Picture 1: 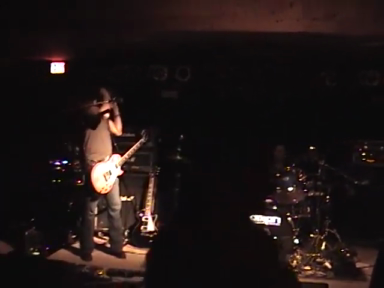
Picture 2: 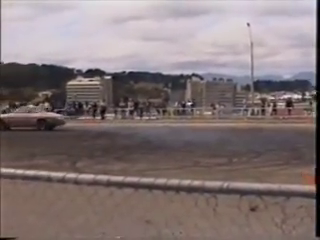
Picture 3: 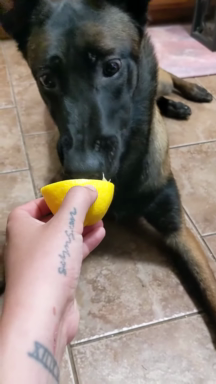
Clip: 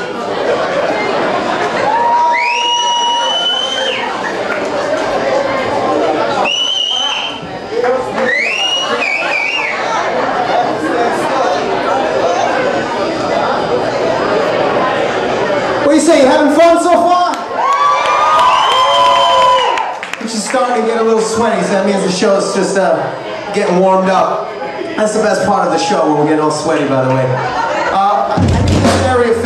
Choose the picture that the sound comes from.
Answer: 1